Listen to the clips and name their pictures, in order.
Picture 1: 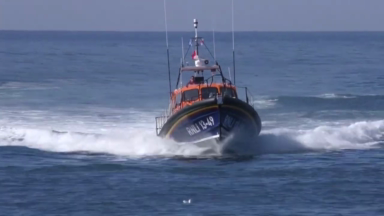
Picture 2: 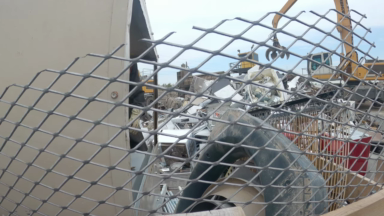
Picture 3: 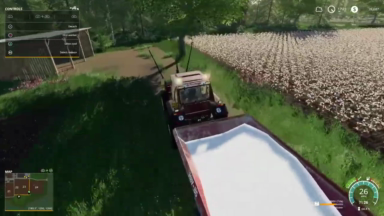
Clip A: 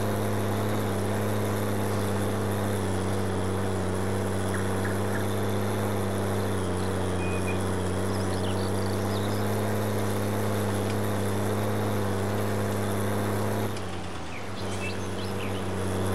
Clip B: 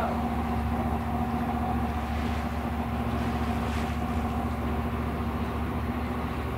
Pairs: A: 3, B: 1